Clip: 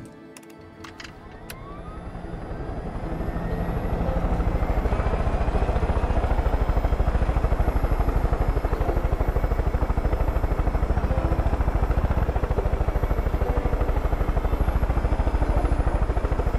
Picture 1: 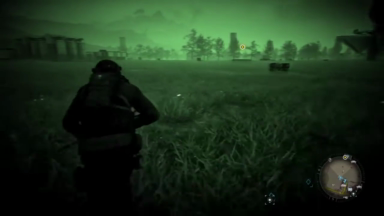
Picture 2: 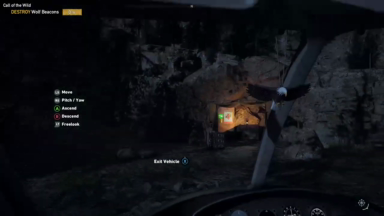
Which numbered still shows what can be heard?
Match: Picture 2